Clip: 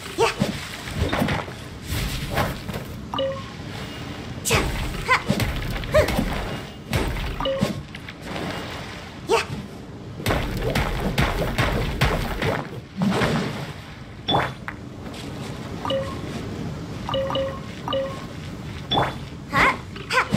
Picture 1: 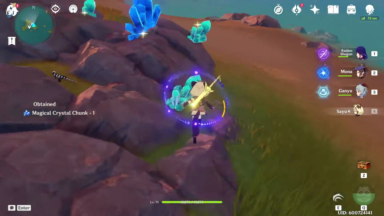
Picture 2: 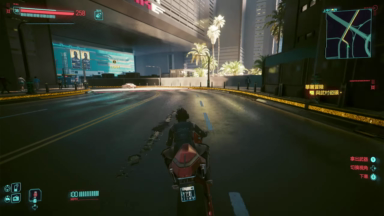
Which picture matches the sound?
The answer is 1